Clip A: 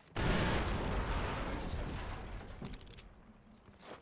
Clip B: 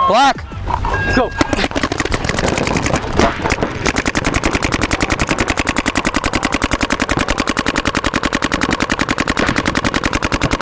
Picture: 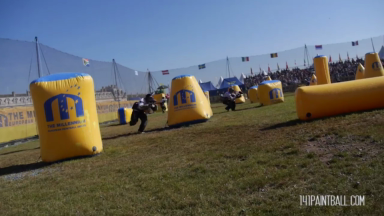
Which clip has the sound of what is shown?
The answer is B